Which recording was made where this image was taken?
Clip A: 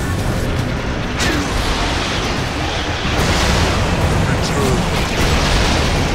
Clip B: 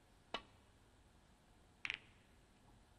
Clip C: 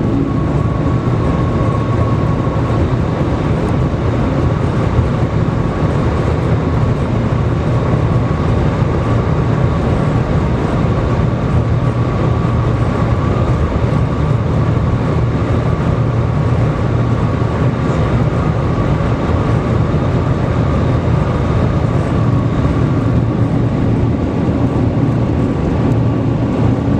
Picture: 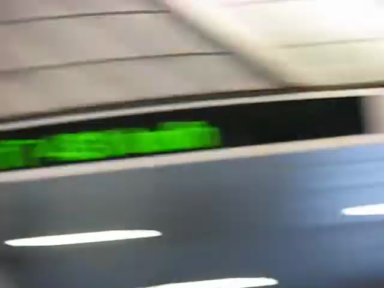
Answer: C